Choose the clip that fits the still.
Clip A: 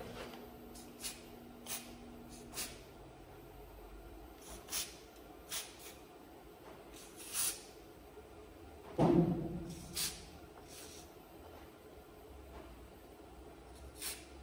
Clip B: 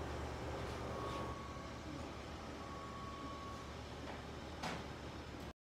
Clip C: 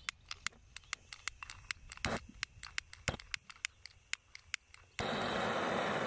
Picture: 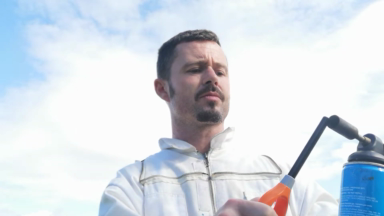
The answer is C